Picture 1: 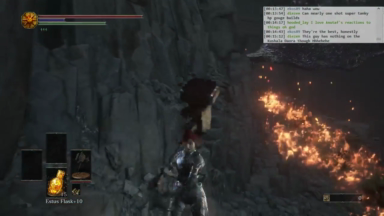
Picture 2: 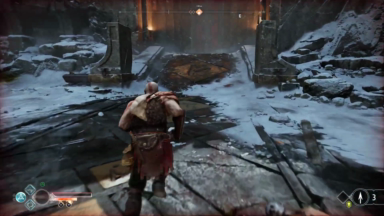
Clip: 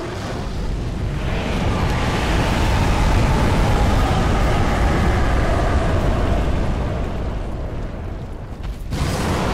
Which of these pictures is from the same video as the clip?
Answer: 1